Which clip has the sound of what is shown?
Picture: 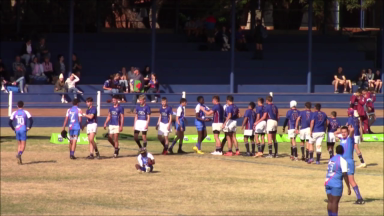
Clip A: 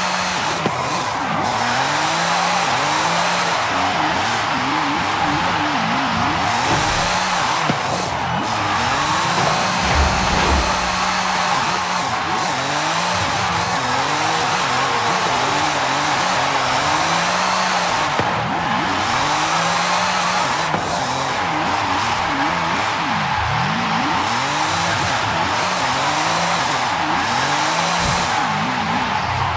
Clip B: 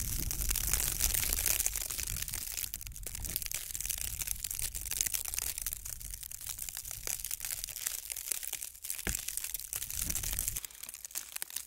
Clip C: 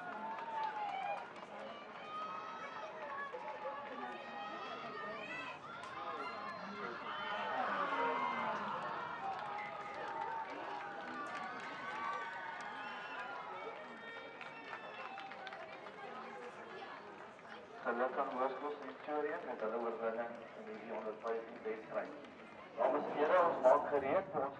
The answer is C